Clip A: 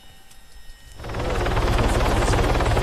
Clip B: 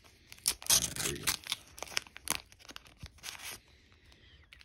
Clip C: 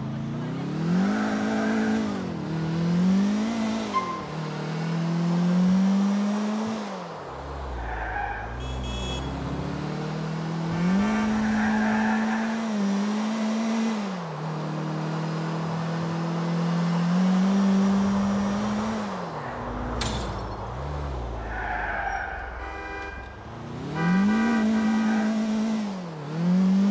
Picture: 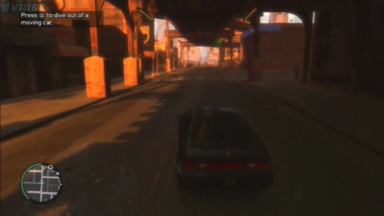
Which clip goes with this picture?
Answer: C